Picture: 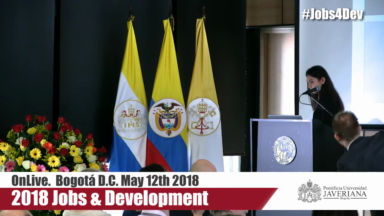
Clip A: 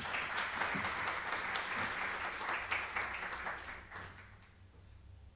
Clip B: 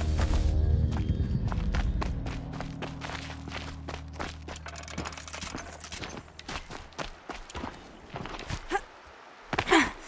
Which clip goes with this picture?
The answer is A